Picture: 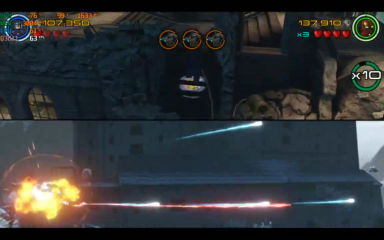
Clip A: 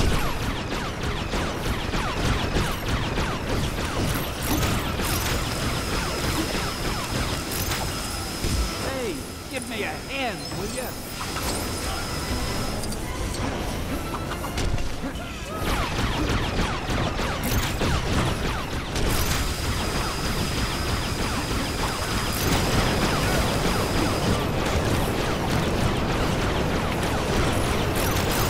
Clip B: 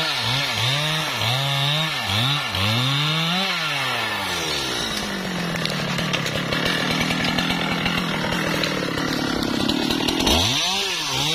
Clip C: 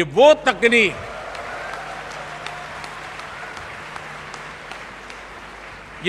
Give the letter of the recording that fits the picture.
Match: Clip A